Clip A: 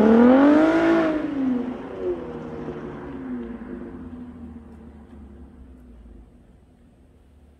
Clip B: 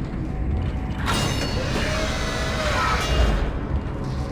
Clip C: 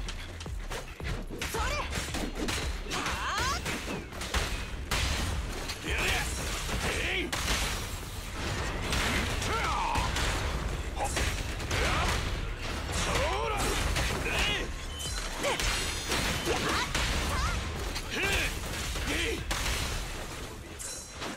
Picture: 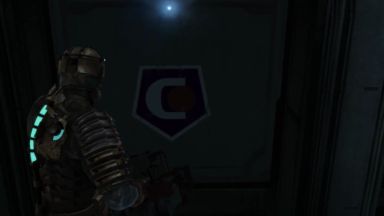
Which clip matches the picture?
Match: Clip B